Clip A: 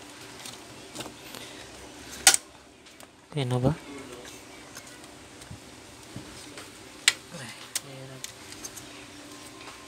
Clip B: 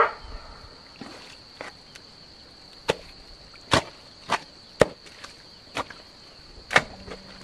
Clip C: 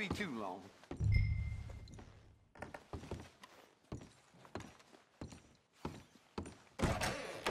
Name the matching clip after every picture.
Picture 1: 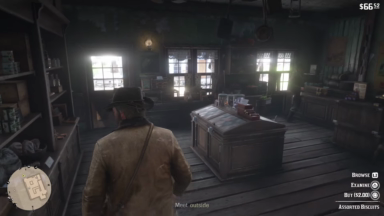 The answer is C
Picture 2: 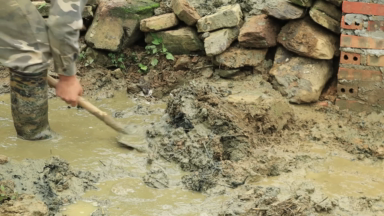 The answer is B